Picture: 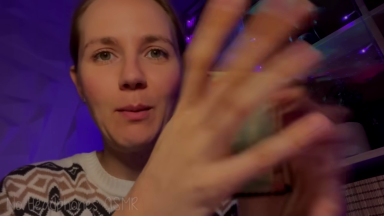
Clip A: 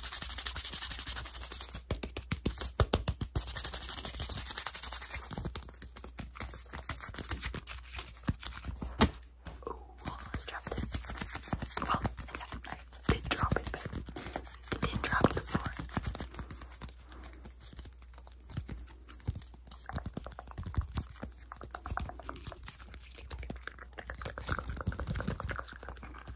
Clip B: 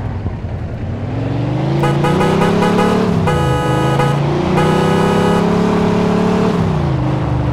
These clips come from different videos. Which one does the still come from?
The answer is A